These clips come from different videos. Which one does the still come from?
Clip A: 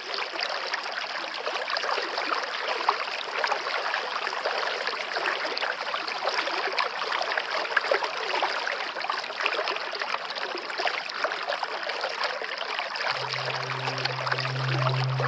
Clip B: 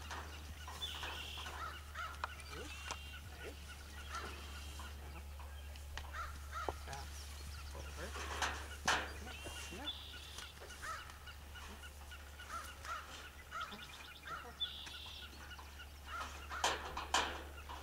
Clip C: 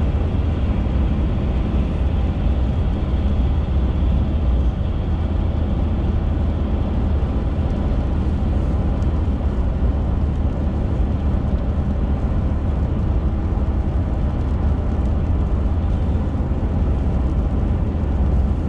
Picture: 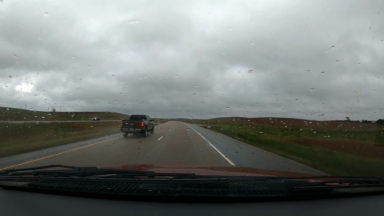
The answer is C